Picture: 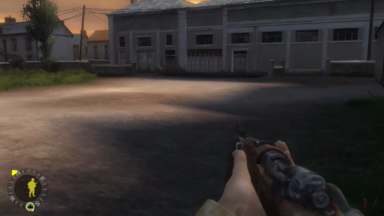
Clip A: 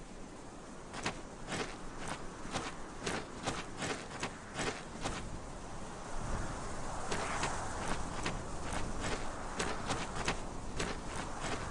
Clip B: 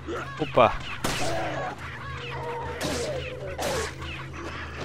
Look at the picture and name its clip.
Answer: A